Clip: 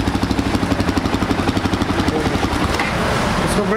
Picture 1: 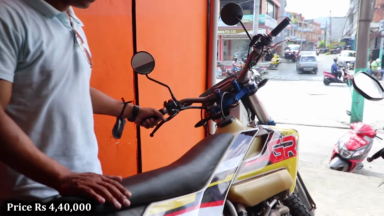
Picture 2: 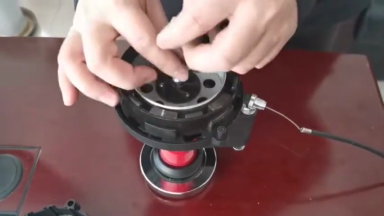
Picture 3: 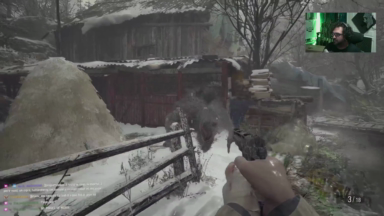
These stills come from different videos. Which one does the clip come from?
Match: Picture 1